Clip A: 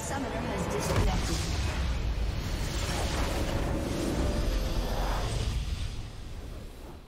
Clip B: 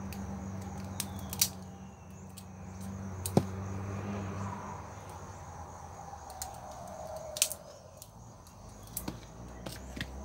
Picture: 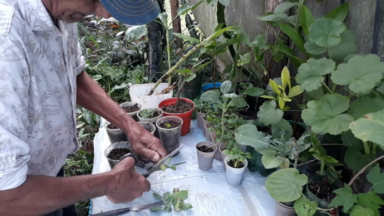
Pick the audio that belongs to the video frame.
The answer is B